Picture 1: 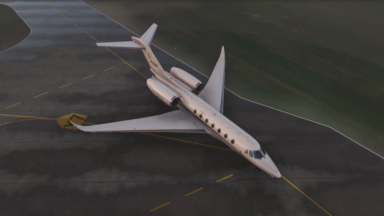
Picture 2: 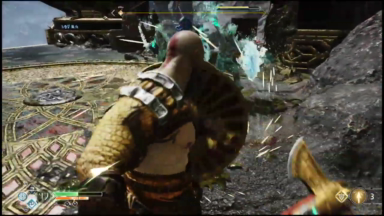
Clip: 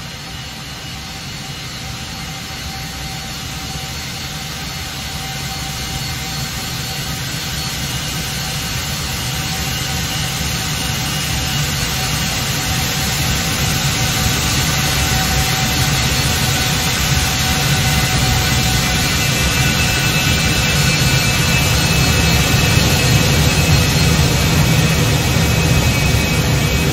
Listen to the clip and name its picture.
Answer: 1